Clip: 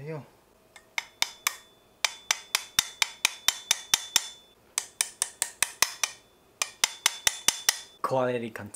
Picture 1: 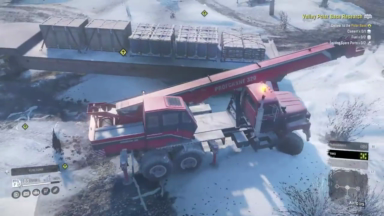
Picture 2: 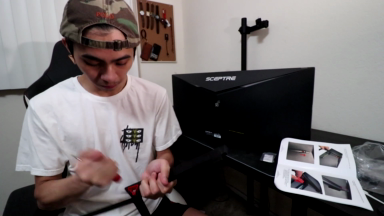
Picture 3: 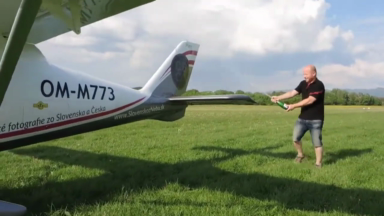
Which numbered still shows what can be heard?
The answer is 2